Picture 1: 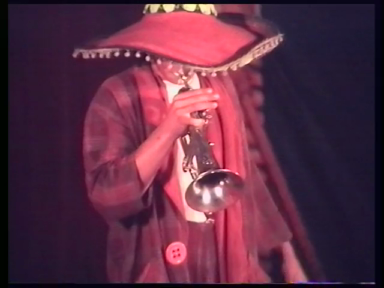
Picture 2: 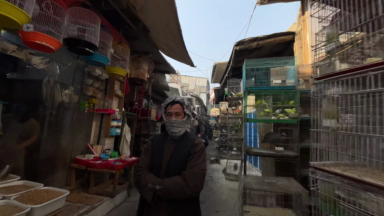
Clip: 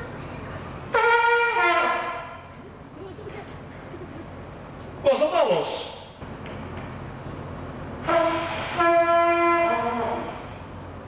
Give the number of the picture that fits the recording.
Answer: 1